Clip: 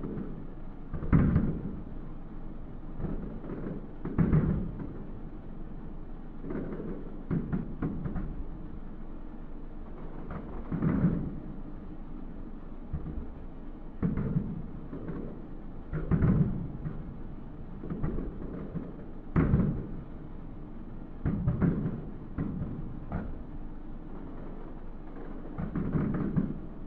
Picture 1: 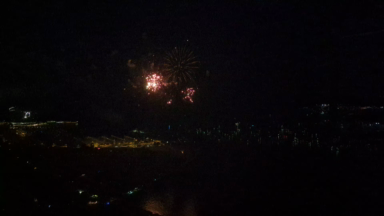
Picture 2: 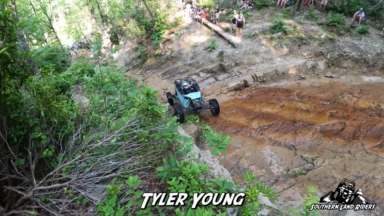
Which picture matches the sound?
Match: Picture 1